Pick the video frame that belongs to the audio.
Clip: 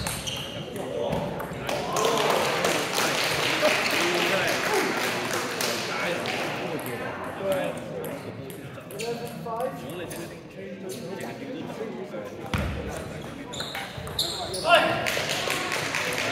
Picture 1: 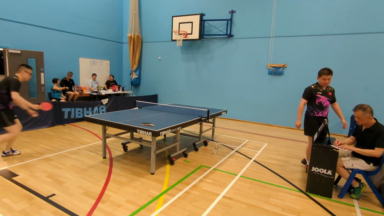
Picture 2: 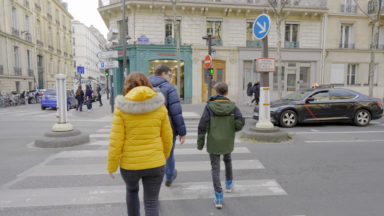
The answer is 1